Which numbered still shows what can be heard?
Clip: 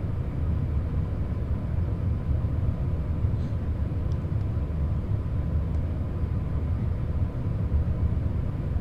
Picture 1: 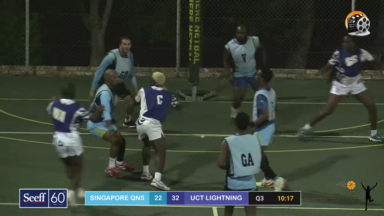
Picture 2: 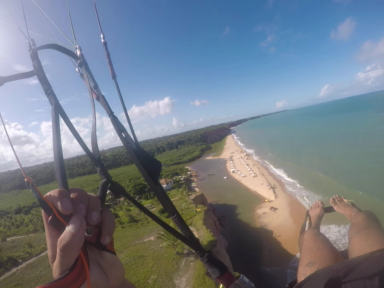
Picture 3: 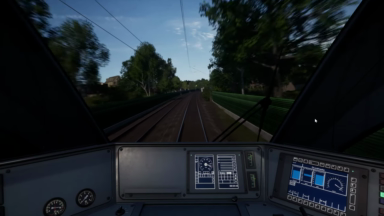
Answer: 3